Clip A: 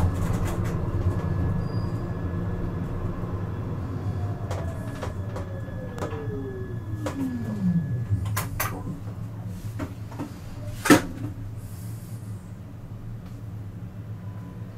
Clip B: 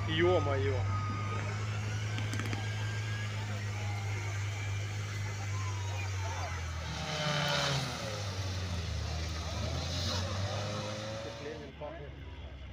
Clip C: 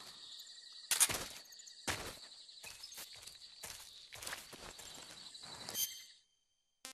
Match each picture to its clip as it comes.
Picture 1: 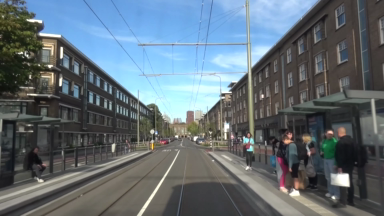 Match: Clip A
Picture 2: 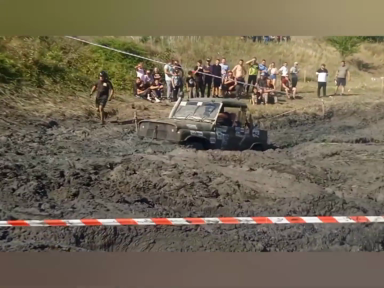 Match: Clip B